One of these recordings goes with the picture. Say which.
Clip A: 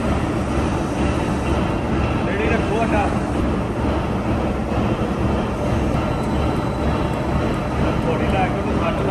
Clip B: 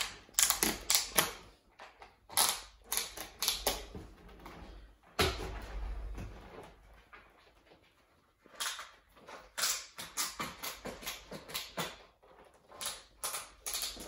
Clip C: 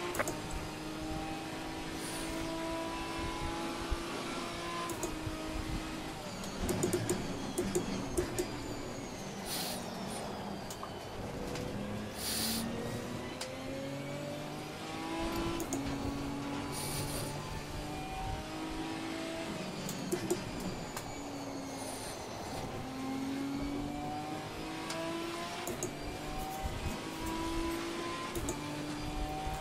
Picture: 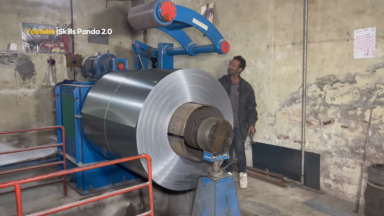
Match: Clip A